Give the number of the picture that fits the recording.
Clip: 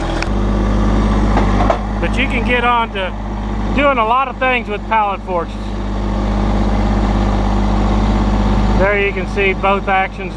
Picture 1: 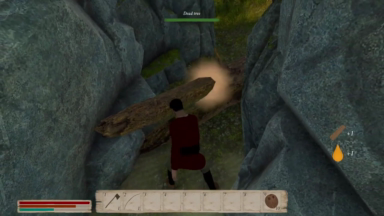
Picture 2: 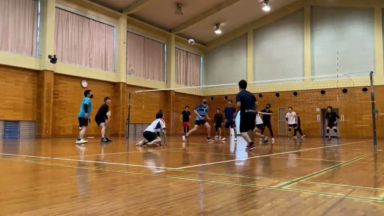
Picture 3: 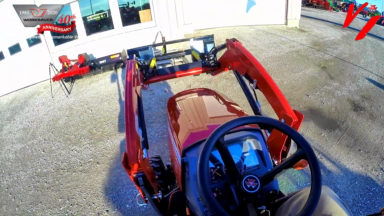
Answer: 3